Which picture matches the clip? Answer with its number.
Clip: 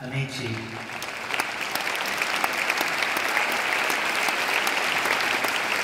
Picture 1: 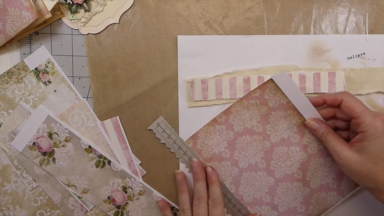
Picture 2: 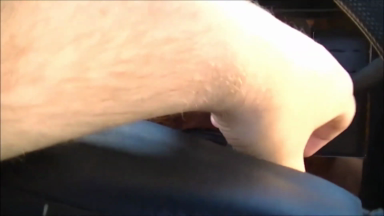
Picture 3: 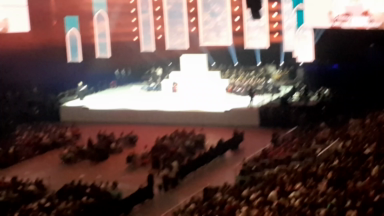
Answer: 3